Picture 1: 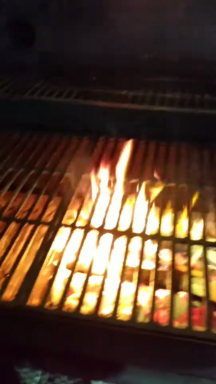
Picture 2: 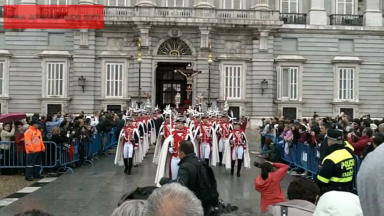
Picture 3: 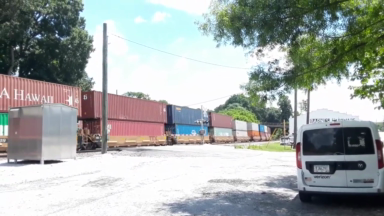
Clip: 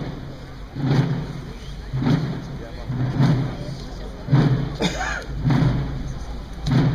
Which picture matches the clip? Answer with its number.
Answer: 2